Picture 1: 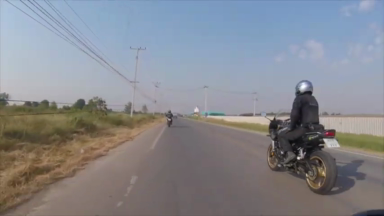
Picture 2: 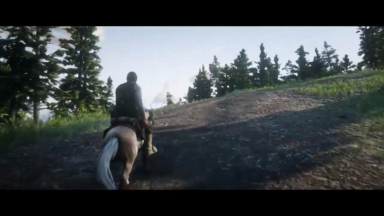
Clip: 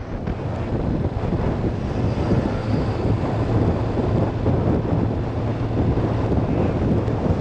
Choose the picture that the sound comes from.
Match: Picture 1